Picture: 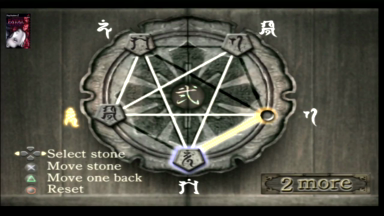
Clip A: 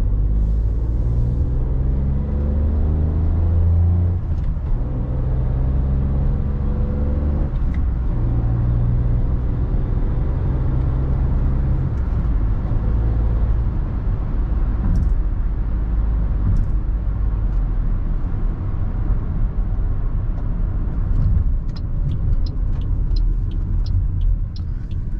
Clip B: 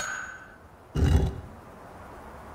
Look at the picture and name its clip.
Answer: B